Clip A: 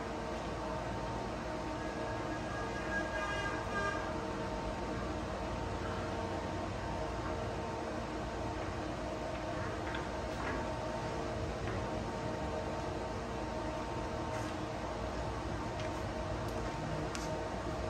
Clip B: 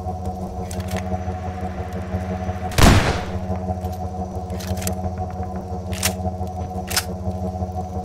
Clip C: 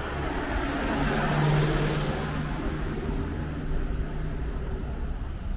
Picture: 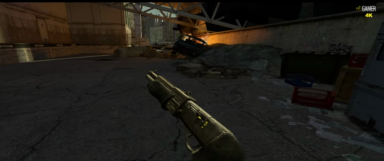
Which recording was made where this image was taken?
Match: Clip B